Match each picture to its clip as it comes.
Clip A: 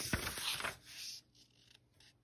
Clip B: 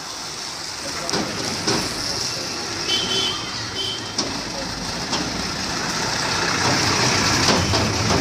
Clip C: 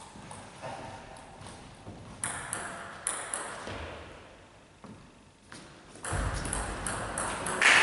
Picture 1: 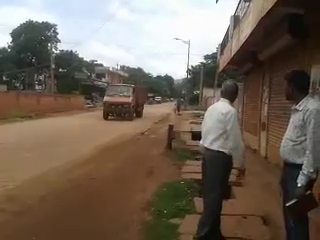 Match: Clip B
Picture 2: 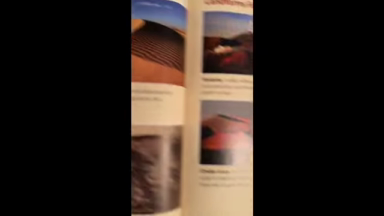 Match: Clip A